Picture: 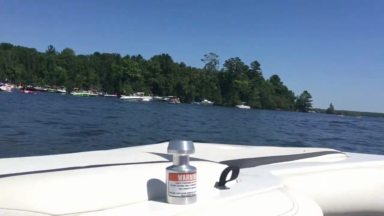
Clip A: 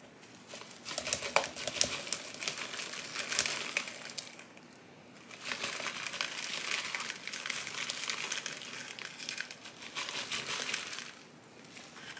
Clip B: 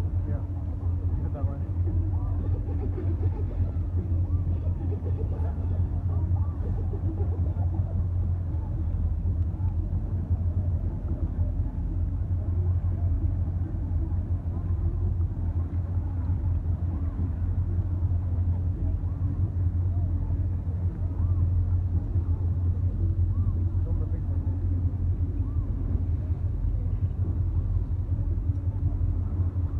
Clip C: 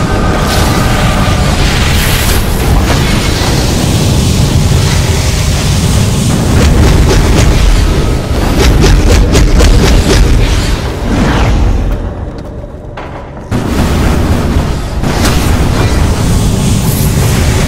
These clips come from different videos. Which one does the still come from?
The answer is B